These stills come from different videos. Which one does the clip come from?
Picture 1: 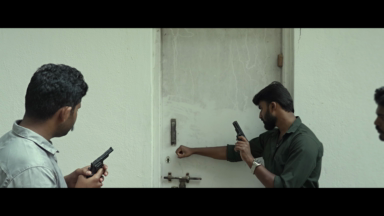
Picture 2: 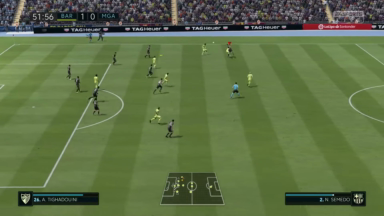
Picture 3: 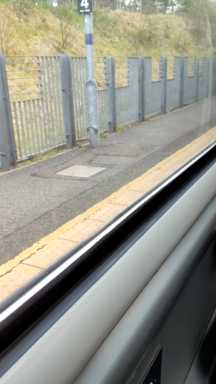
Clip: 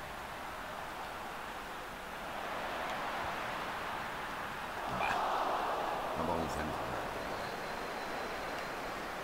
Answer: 2